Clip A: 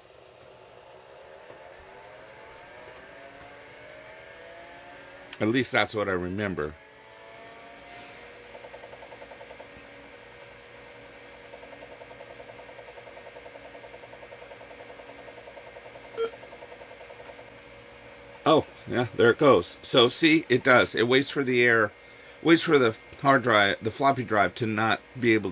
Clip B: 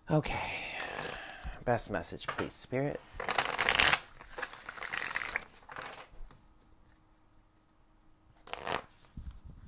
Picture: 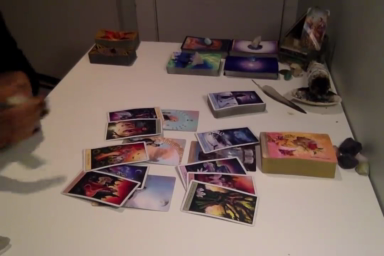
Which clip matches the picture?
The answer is B